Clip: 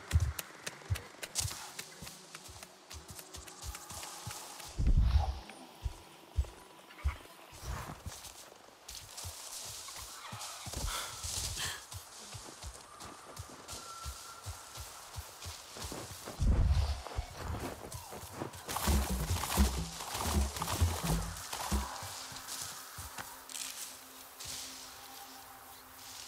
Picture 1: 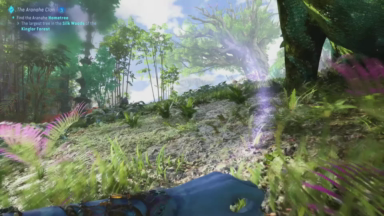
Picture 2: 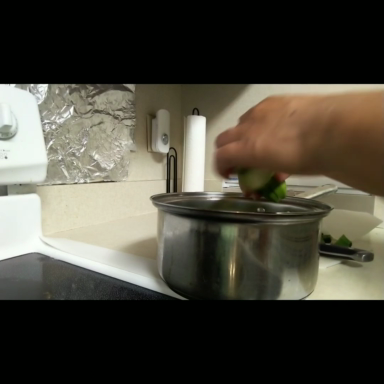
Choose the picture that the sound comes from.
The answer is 1